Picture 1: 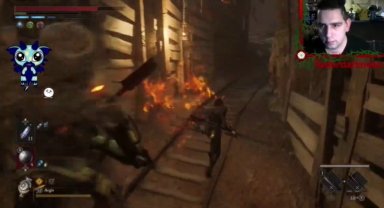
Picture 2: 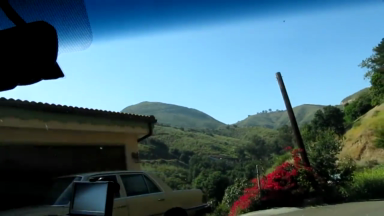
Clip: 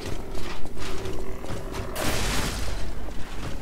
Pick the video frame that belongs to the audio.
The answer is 1